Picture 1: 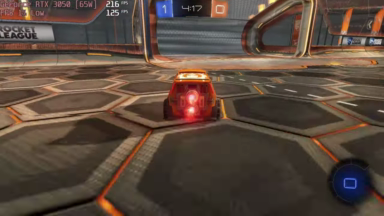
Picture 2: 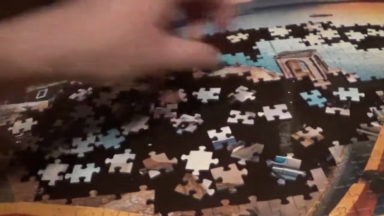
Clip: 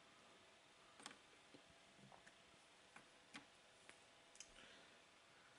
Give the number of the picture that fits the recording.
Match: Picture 2